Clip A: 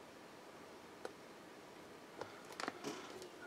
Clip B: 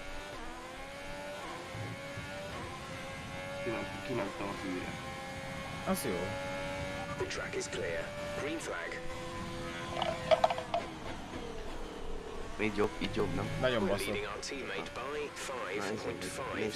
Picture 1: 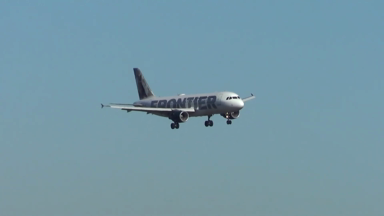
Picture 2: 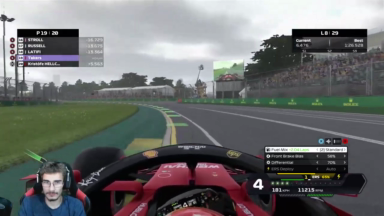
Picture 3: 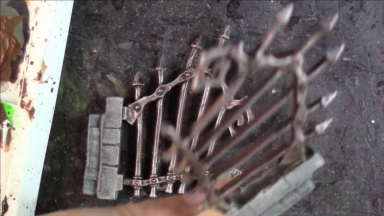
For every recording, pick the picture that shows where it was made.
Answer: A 3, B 2